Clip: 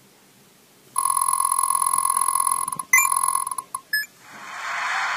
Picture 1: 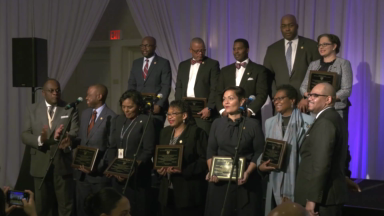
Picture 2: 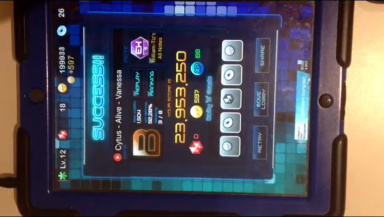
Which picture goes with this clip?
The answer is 2